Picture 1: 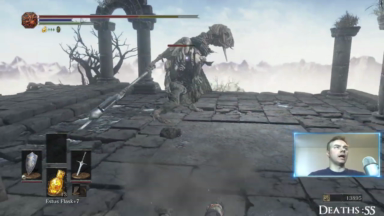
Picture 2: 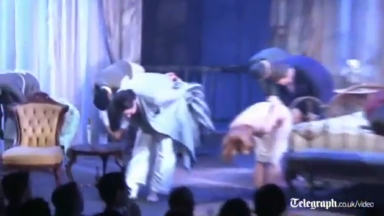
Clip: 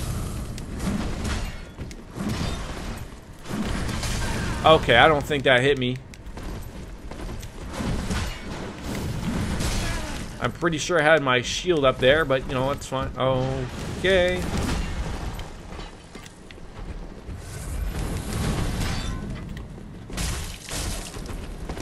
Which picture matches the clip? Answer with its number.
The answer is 1